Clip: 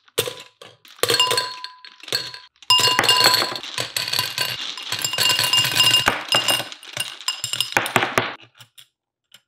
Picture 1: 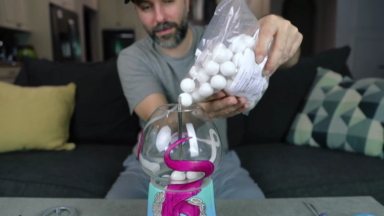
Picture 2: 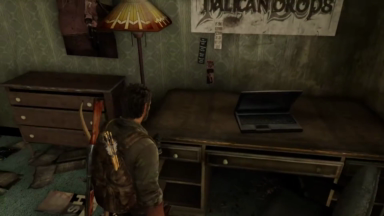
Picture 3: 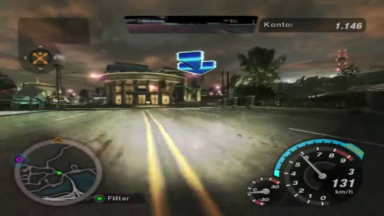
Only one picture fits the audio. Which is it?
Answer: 1